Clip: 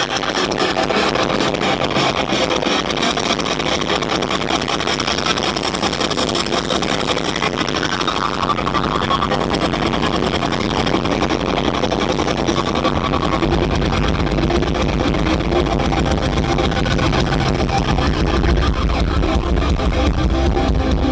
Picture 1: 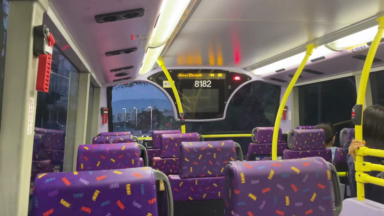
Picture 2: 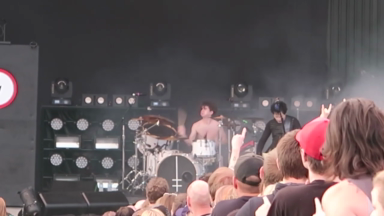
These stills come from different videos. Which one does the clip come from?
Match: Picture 2